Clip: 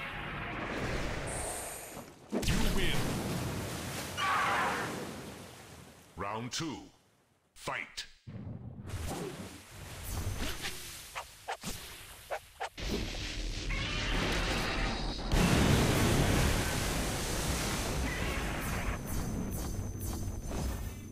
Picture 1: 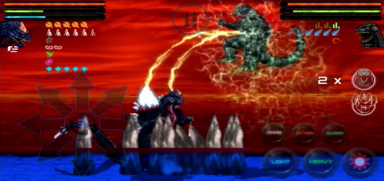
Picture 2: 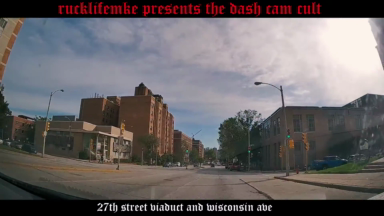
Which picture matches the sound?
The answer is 1